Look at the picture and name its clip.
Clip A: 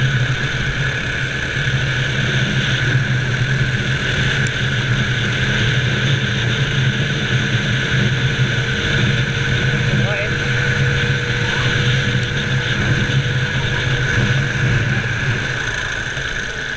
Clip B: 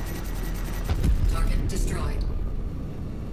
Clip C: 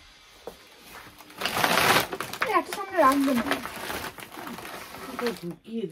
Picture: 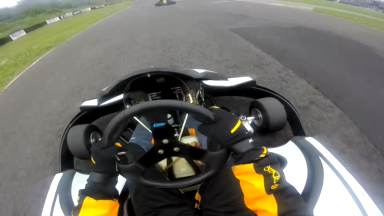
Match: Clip A